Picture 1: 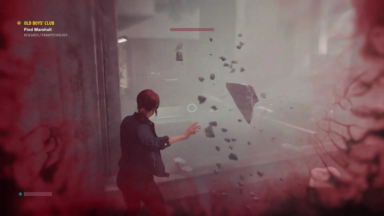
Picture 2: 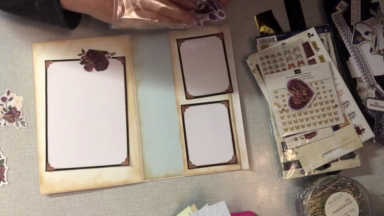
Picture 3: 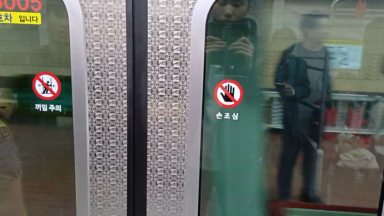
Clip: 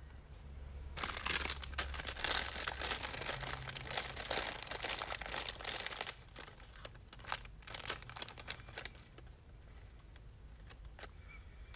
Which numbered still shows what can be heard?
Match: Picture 2